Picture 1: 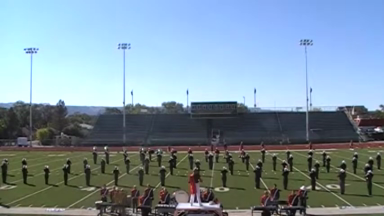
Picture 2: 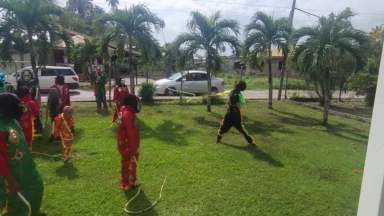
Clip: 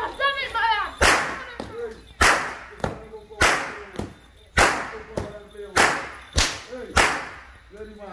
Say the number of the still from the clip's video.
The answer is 2